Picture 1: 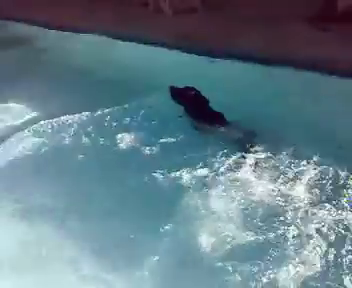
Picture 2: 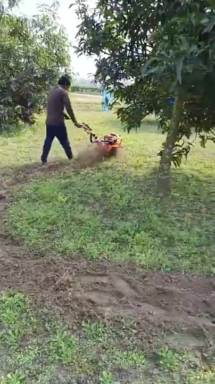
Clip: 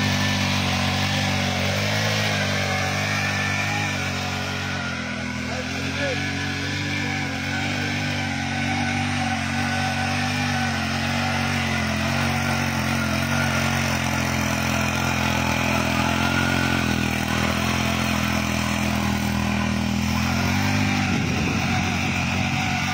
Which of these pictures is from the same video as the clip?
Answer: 2